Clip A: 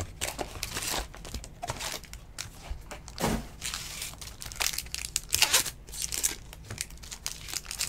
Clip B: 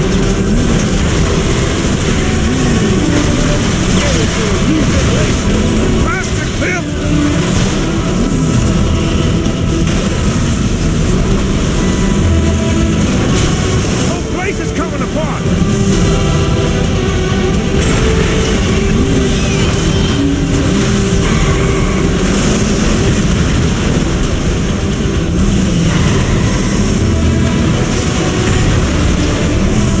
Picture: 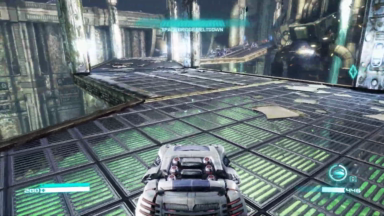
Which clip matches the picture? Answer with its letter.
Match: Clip B